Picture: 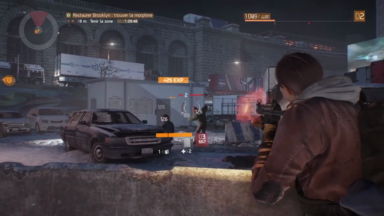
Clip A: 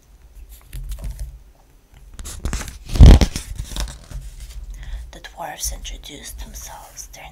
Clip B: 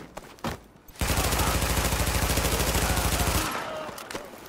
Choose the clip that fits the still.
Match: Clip B